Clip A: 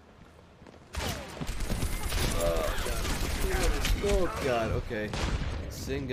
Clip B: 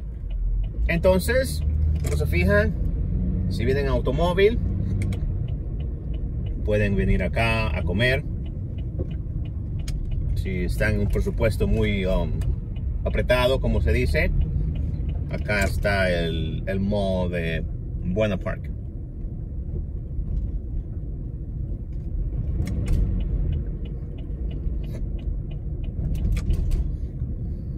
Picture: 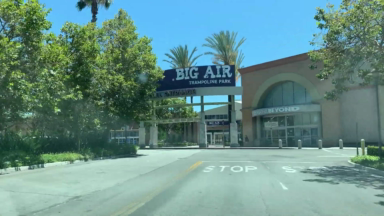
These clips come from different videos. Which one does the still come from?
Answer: B